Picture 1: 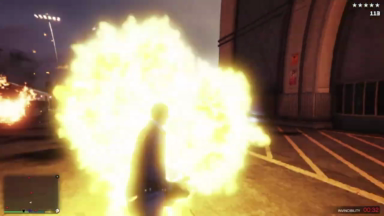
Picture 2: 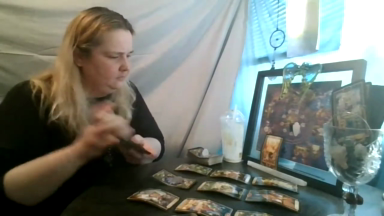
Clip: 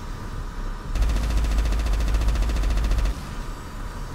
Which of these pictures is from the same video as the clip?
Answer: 1